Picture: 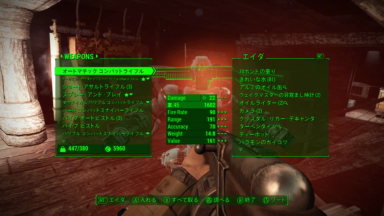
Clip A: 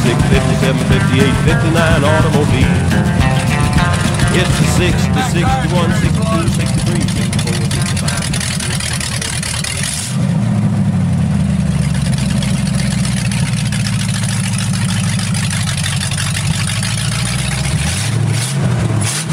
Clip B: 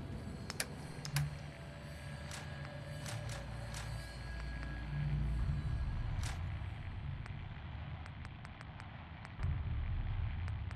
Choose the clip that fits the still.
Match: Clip B